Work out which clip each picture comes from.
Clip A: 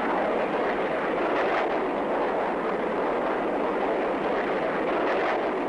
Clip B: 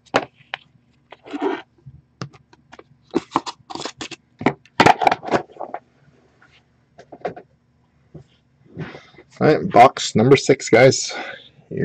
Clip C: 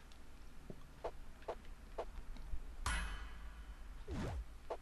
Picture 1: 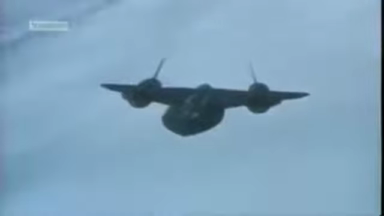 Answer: A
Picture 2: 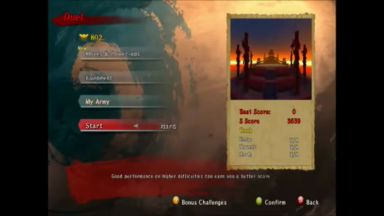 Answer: C